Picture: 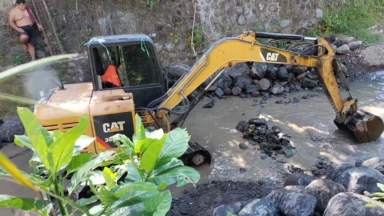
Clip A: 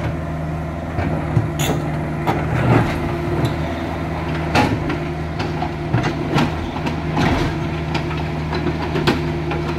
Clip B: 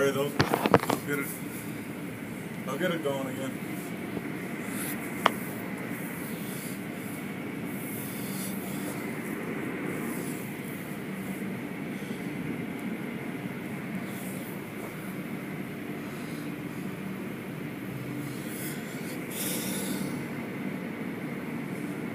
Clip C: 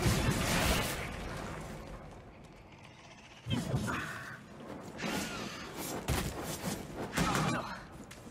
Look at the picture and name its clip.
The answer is A